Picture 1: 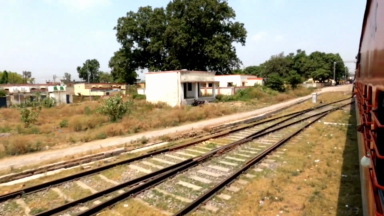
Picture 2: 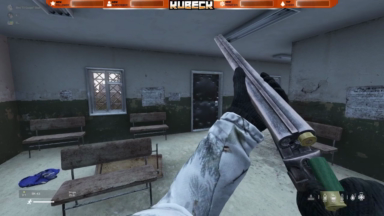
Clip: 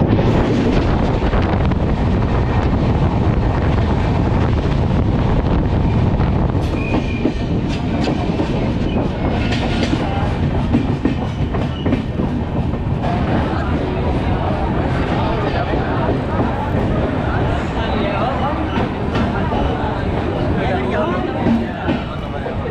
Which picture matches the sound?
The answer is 1